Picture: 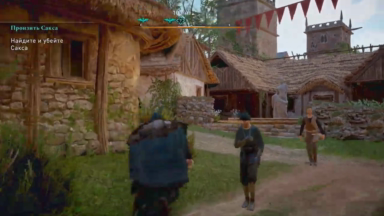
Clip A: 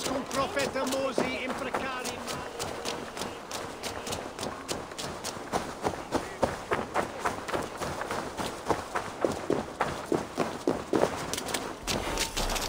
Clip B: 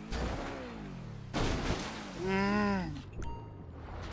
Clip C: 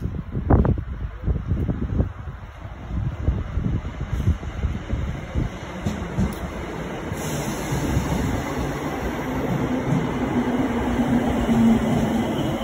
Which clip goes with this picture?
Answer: A